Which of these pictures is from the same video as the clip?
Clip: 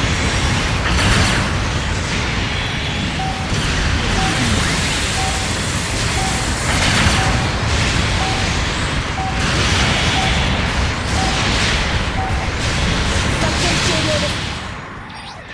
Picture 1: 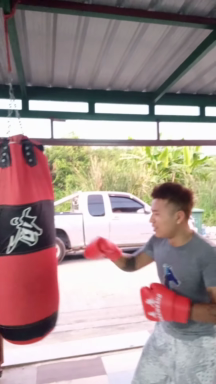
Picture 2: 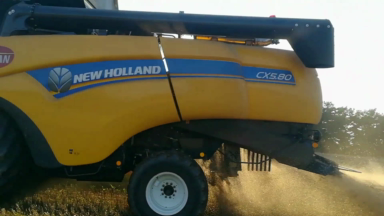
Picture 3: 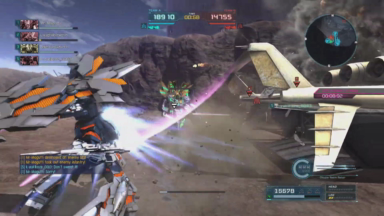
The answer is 3